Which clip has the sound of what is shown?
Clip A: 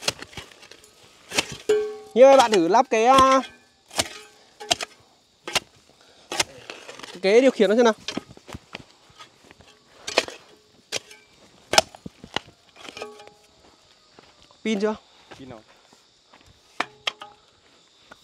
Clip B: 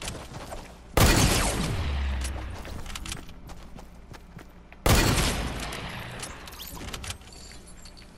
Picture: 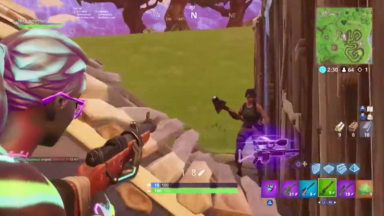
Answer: B